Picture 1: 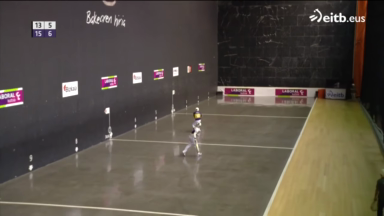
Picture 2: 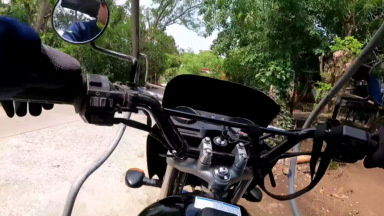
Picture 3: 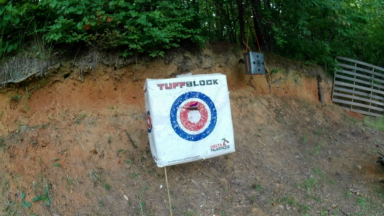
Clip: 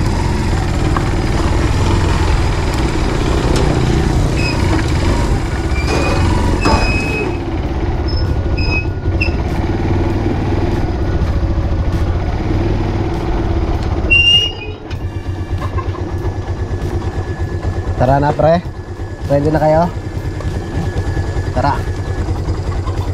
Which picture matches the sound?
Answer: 2